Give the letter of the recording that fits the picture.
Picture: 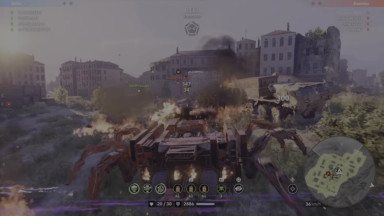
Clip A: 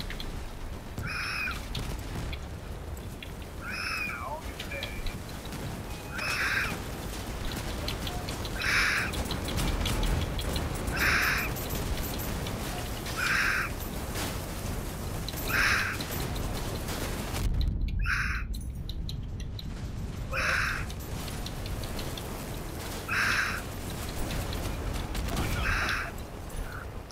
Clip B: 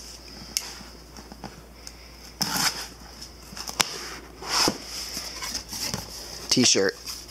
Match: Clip A